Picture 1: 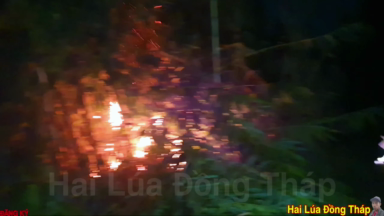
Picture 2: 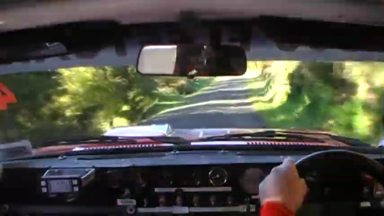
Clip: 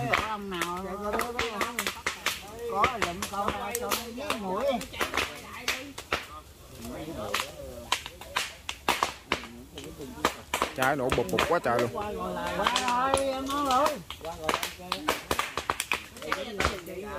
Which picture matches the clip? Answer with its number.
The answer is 1